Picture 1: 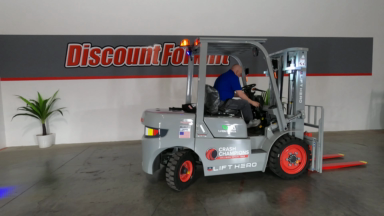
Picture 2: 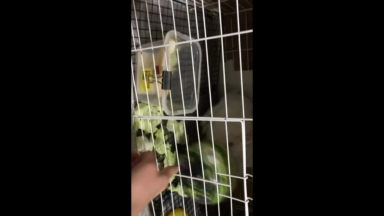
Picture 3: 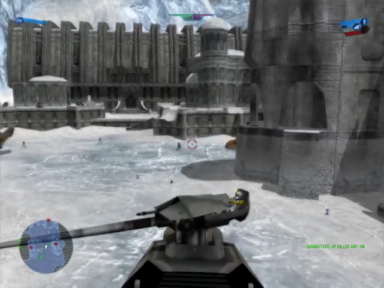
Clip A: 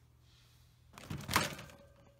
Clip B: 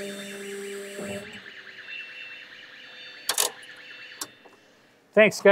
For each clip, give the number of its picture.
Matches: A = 2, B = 1